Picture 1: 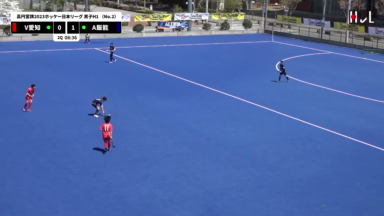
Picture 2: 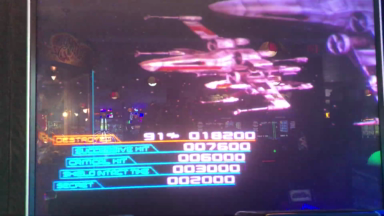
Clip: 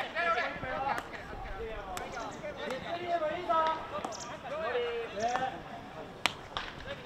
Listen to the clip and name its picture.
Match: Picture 1